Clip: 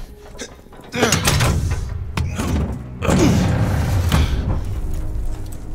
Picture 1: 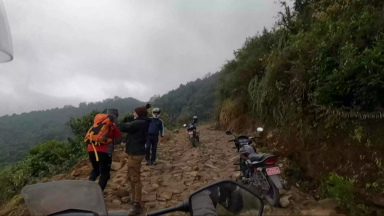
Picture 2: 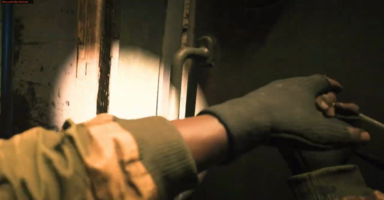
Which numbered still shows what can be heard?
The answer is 2